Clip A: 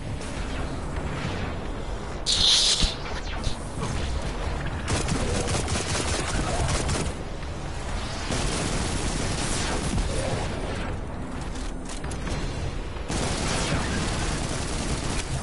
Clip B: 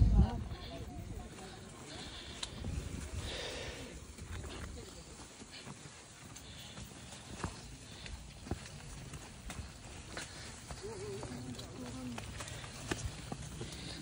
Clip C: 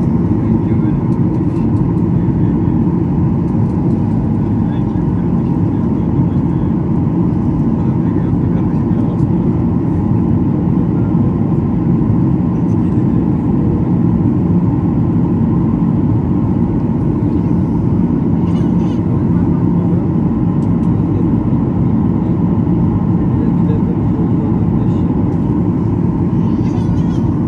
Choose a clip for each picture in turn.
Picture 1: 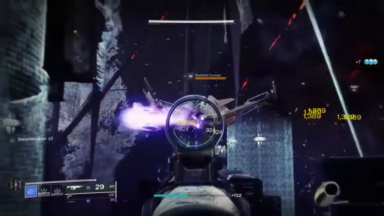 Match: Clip A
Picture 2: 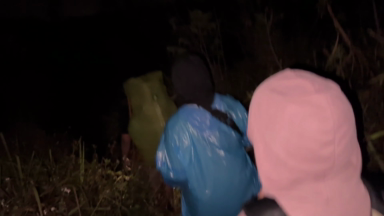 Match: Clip B